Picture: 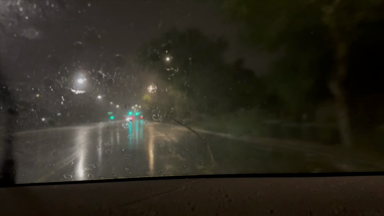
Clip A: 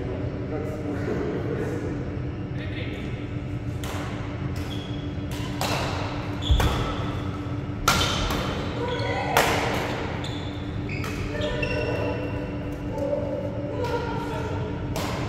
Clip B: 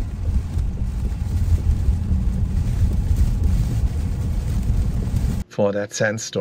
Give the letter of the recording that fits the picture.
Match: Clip B